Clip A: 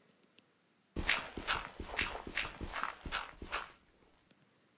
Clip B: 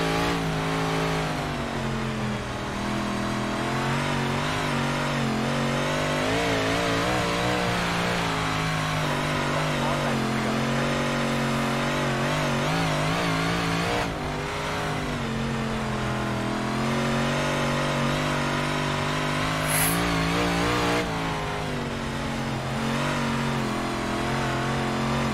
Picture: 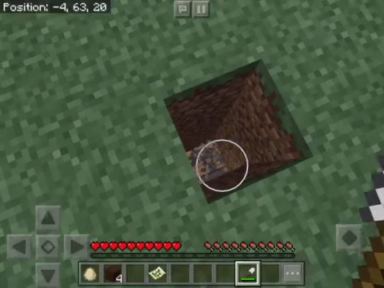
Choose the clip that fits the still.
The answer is A